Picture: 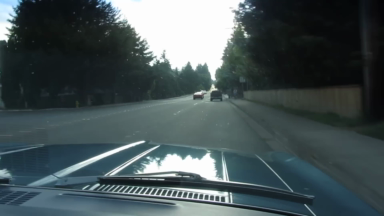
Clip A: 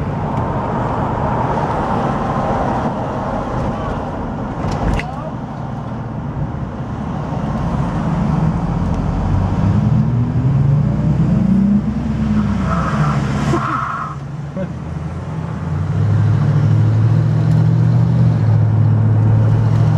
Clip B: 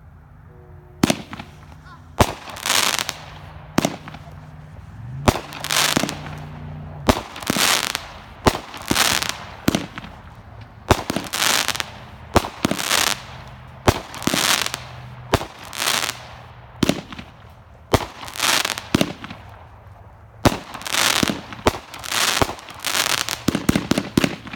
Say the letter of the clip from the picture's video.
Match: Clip A